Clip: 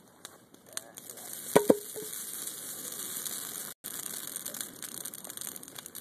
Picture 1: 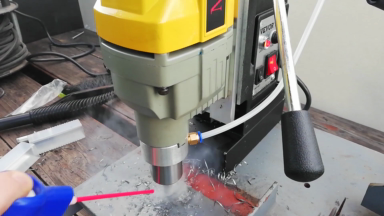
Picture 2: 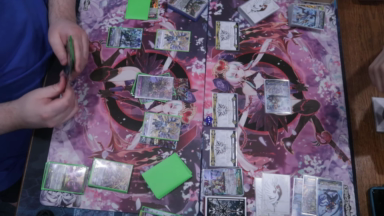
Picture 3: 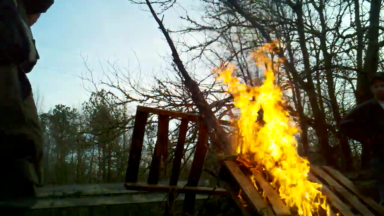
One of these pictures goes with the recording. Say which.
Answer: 3